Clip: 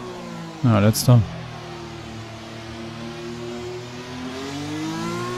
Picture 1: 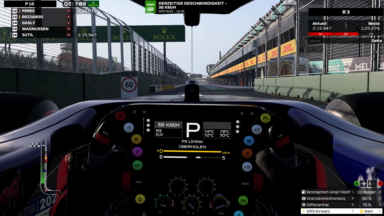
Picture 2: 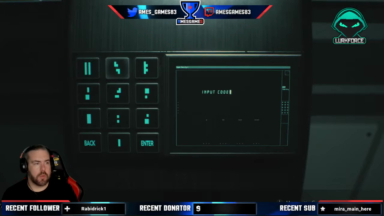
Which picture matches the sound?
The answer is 1